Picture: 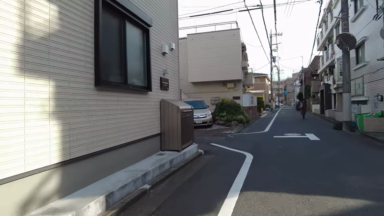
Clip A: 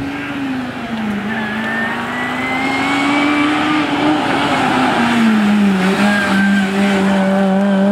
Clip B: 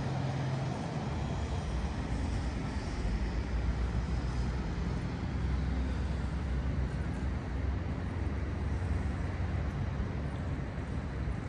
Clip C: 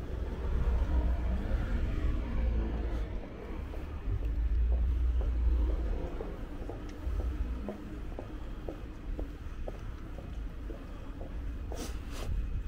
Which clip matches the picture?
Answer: C